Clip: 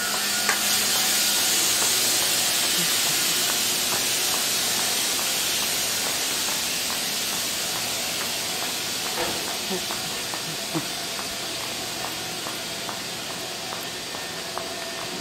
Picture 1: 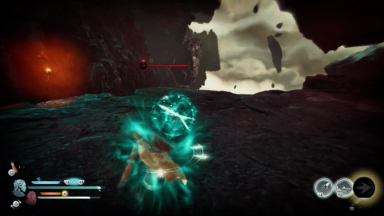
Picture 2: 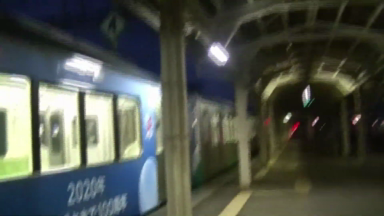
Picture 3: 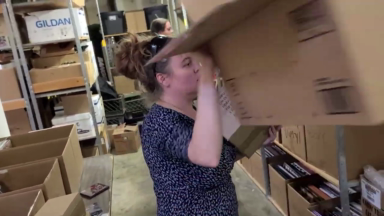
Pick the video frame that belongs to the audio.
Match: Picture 2